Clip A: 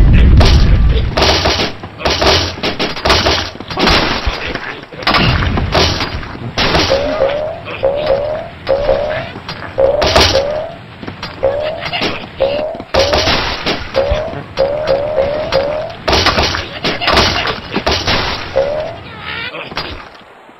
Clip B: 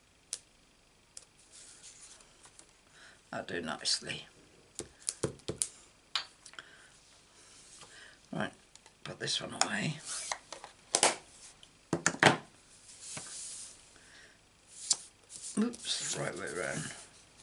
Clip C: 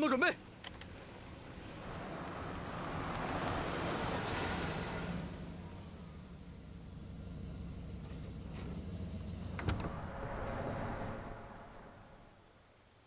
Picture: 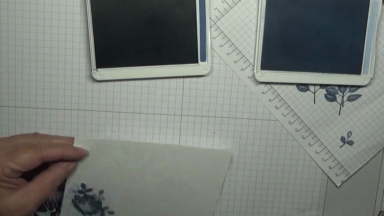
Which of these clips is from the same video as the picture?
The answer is B